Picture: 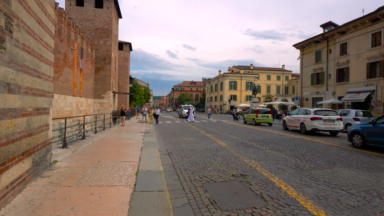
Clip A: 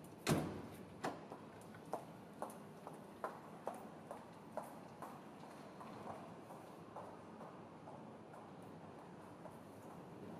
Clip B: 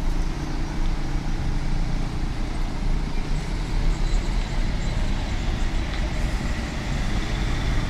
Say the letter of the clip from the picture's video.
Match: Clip B